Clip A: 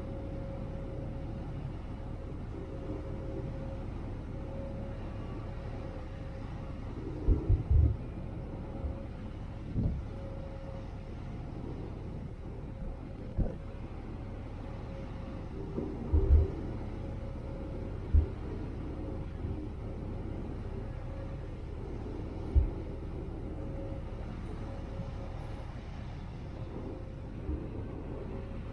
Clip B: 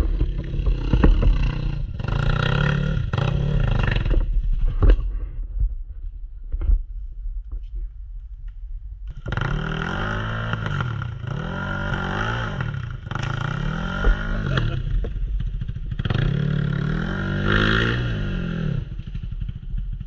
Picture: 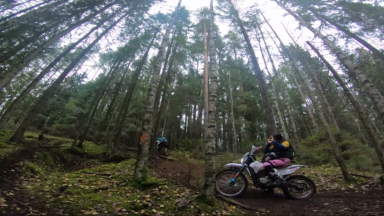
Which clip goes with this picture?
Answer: B